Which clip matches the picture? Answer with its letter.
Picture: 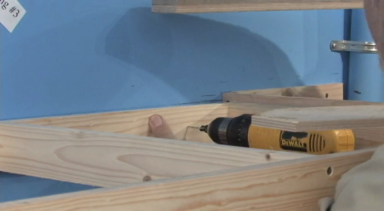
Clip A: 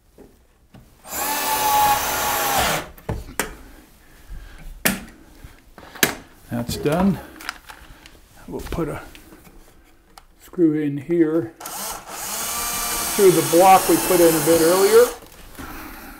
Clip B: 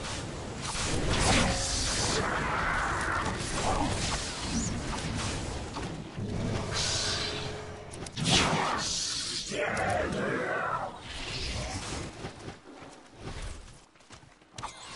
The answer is A